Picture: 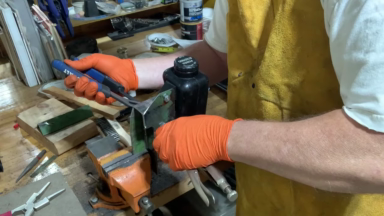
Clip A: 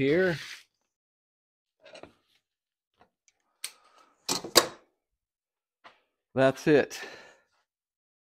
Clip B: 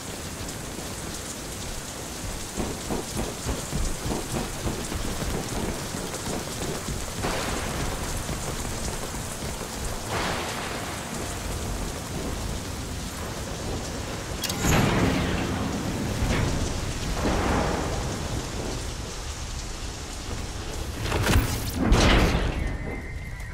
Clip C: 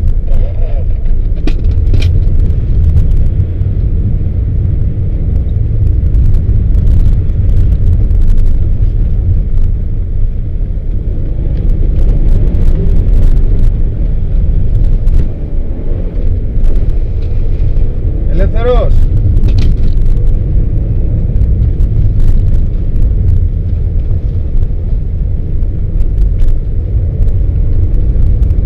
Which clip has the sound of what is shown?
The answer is A